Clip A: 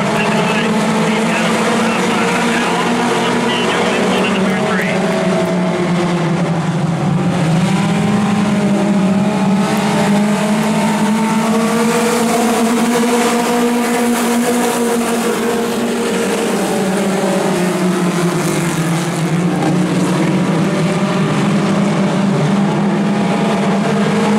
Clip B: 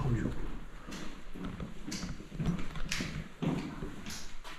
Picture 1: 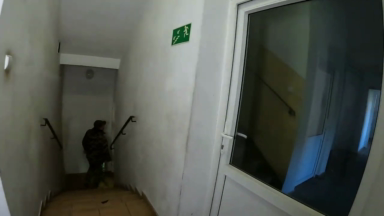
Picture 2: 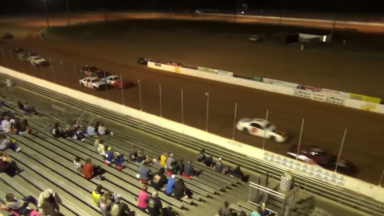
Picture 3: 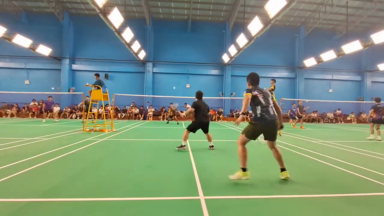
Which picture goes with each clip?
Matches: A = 2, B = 1